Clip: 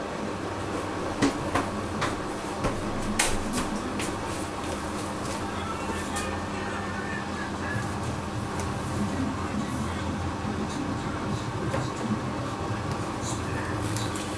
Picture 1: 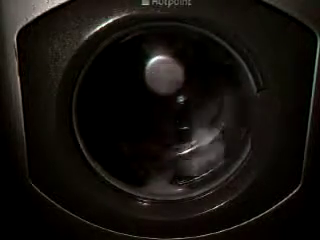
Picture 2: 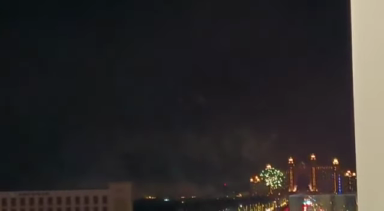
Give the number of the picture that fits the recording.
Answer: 1